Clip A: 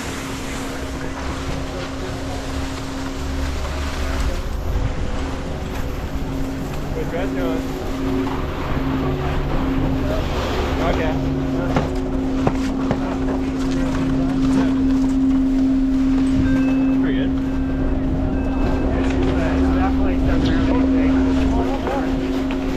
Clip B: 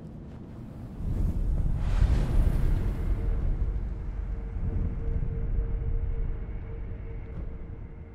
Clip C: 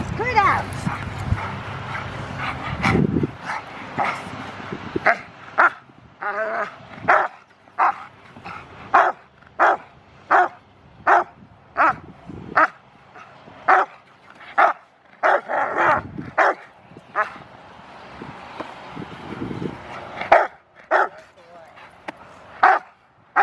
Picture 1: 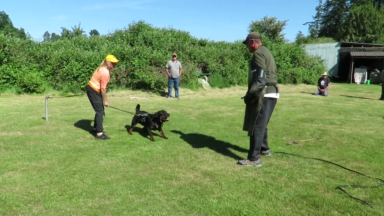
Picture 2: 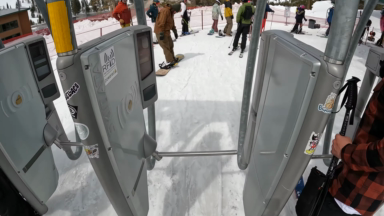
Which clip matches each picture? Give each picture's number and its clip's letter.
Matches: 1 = C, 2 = A